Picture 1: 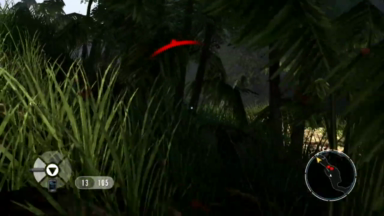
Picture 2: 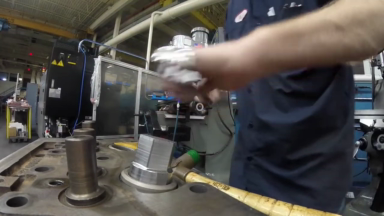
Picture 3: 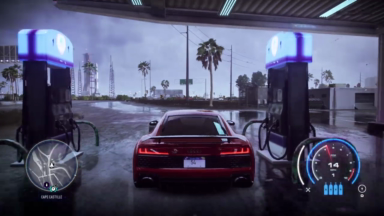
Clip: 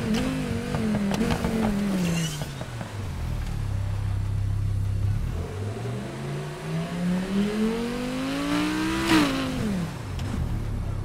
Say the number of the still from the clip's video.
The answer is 3